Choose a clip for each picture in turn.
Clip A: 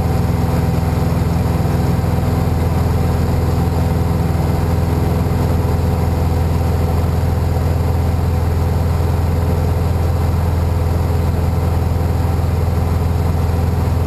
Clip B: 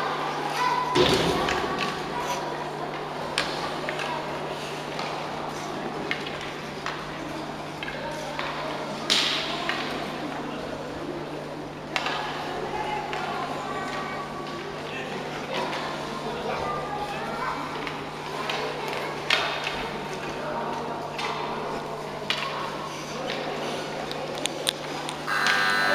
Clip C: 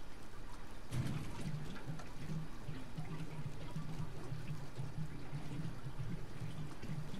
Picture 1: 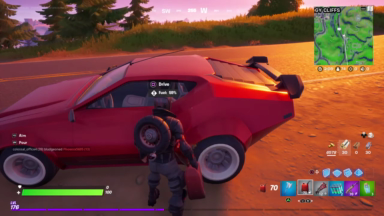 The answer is C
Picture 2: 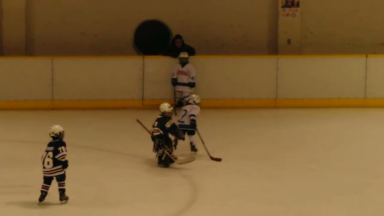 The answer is B